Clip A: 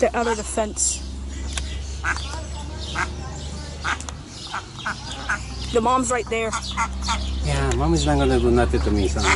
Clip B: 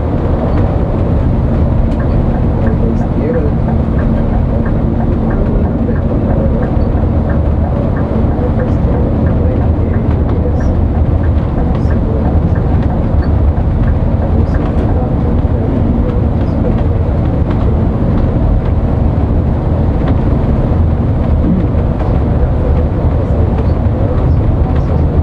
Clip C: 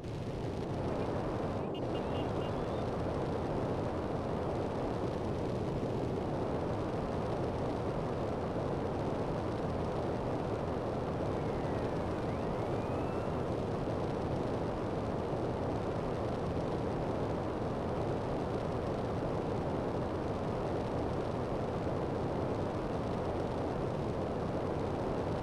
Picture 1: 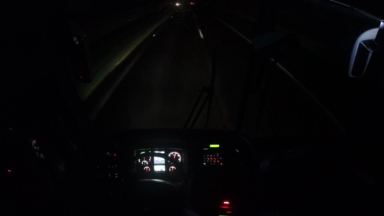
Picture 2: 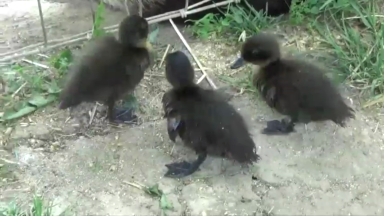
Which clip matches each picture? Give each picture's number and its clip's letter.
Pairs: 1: B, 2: A